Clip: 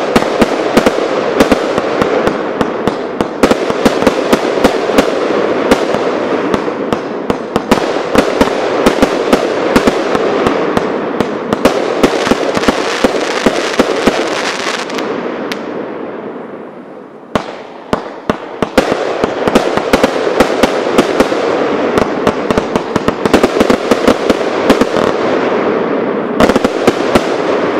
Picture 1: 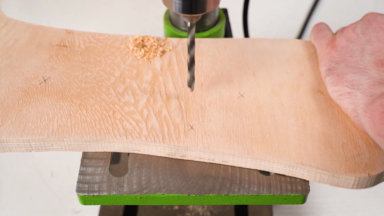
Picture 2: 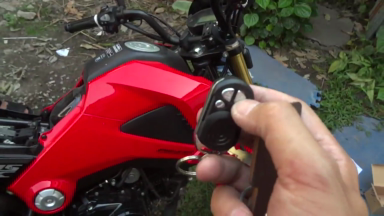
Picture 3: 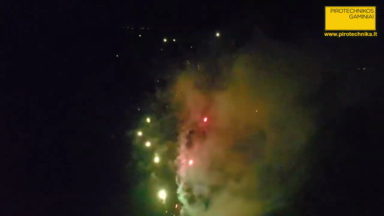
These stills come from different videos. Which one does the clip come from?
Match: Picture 3